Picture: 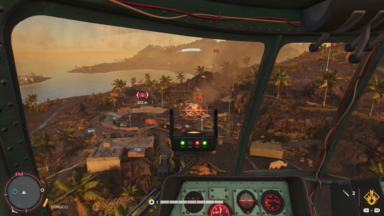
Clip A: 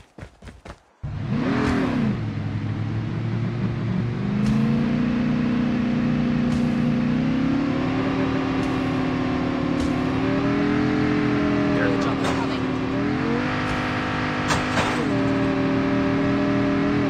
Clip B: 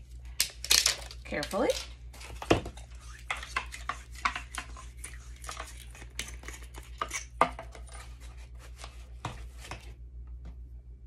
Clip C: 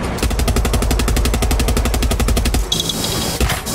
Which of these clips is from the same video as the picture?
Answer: C